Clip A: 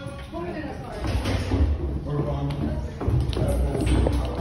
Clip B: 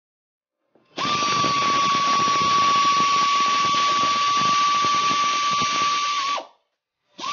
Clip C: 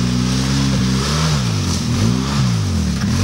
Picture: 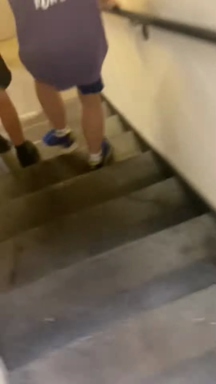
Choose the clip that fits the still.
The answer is A